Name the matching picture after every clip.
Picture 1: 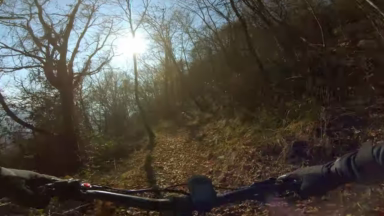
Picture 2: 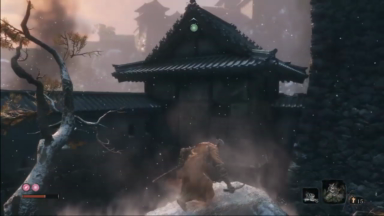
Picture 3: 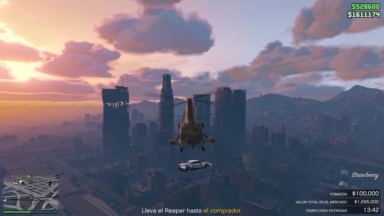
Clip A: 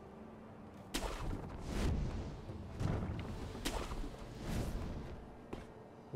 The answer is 2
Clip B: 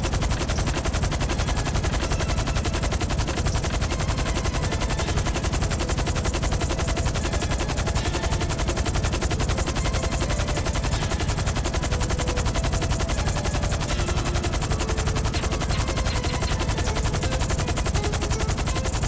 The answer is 3